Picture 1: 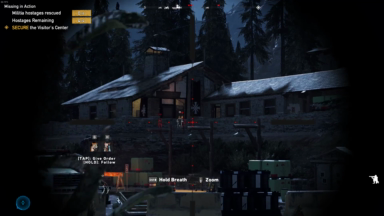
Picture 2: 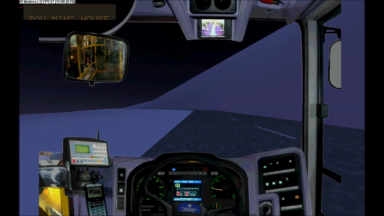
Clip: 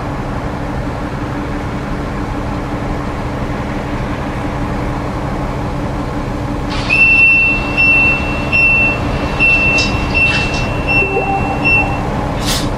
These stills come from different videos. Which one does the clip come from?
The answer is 2